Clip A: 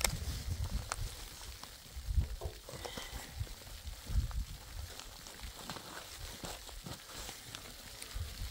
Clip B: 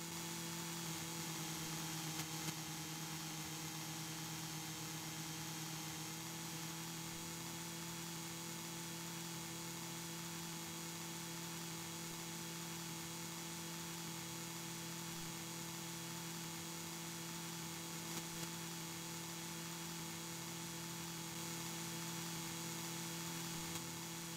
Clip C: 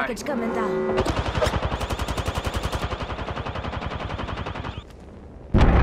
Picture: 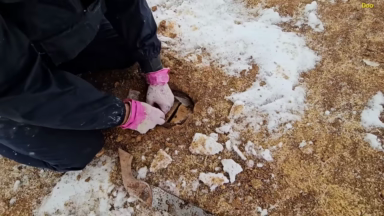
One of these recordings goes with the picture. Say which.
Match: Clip A